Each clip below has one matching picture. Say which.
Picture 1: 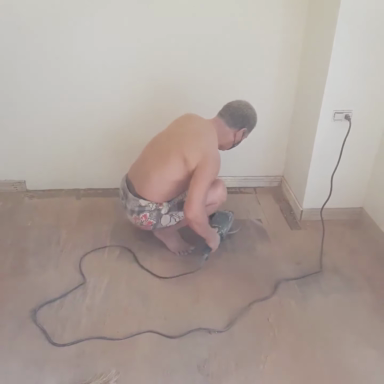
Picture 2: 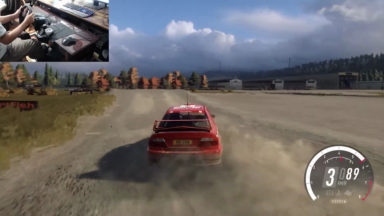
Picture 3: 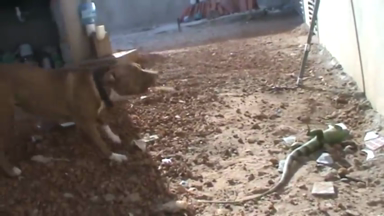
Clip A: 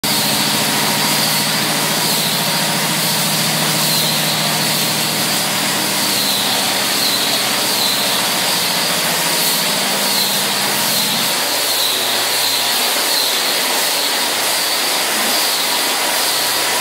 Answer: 1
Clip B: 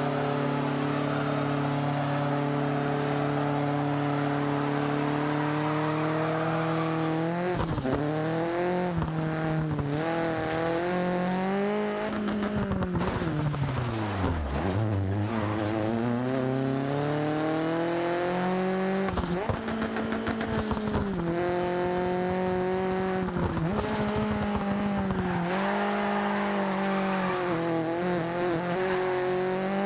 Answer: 2